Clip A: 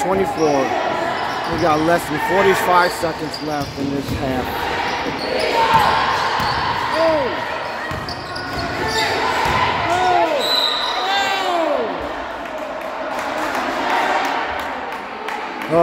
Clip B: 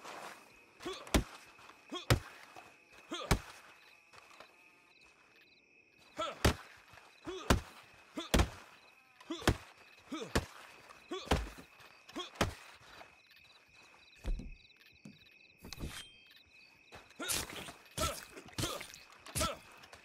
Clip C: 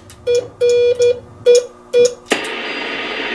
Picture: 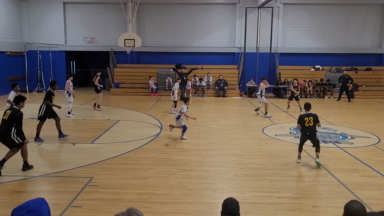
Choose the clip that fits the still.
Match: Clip A